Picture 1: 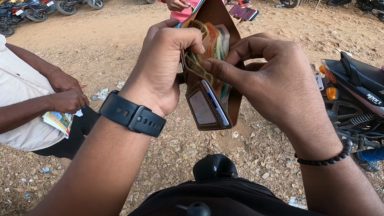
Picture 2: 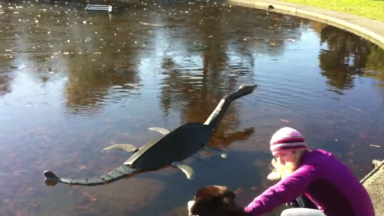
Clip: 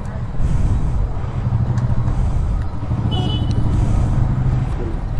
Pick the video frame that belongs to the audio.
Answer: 1